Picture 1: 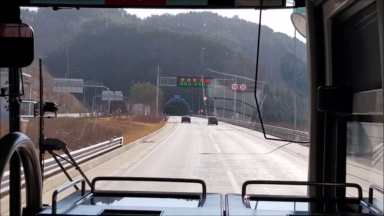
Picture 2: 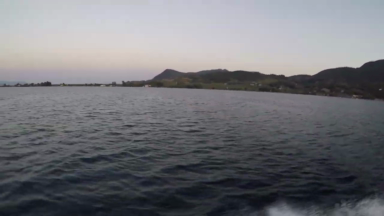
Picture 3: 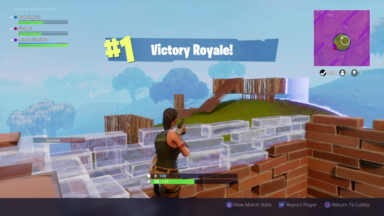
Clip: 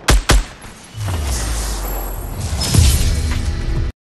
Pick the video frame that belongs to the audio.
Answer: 3